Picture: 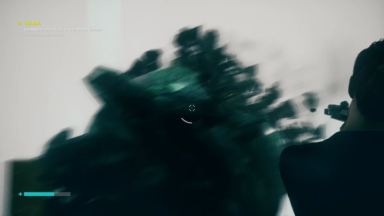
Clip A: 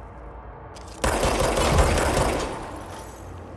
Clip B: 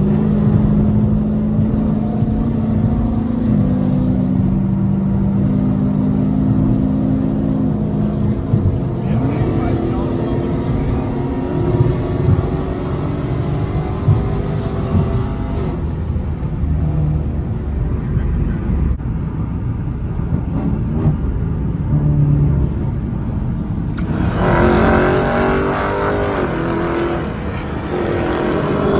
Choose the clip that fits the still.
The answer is A